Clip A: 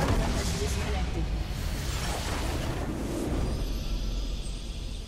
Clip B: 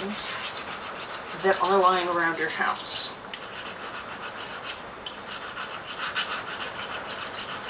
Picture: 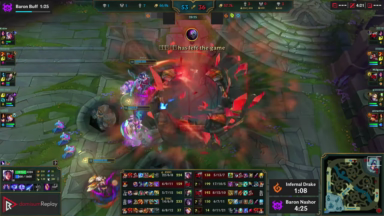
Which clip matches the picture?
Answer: A